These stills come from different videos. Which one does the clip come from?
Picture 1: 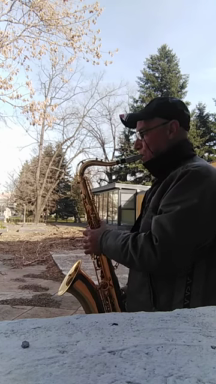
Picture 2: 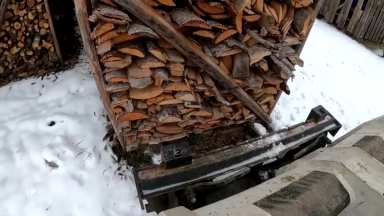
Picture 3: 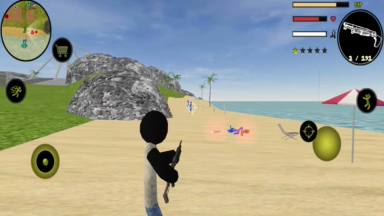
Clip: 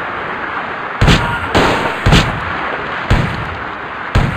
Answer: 3